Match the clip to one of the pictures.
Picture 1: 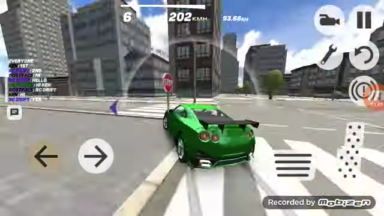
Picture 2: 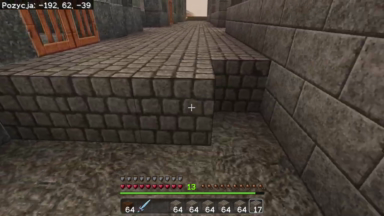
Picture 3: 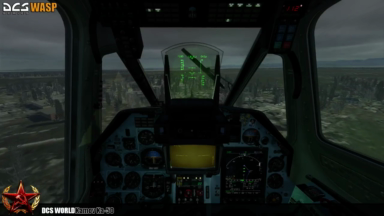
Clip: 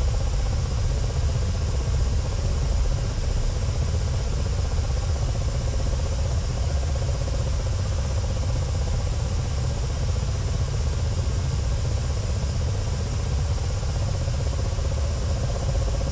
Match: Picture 3